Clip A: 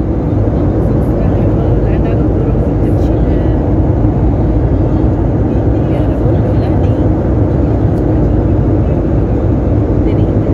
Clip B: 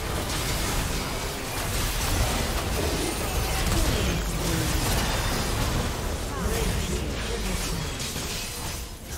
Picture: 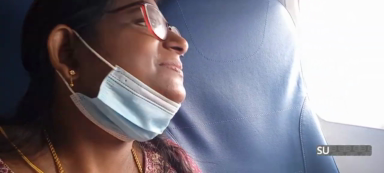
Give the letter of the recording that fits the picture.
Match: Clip A